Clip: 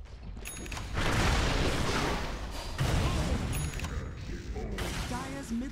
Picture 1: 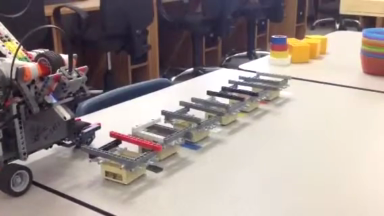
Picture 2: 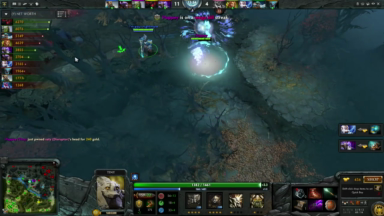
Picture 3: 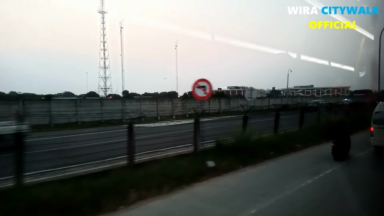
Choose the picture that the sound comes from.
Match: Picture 2